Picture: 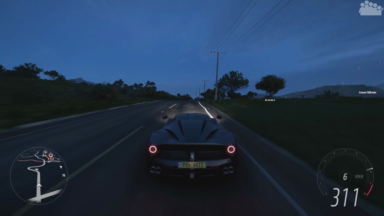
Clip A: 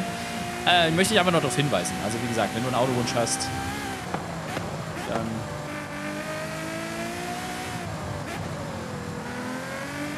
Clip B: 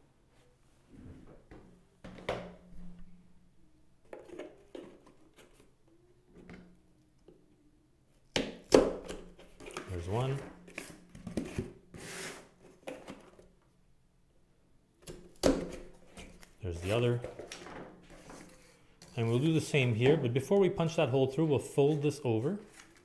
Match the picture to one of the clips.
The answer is A